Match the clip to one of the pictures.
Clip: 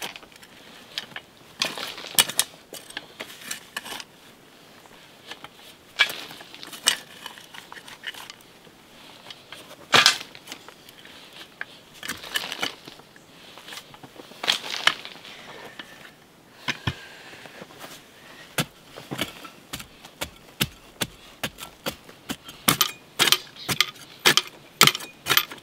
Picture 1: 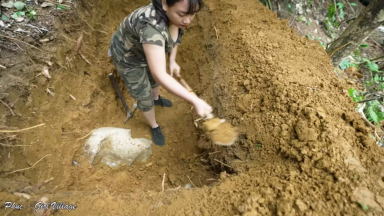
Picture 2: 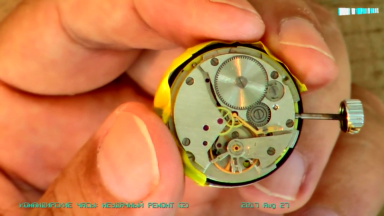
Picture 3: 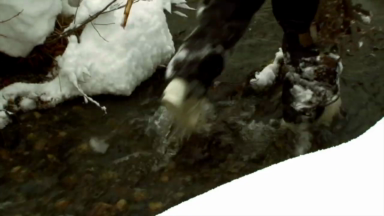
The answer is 1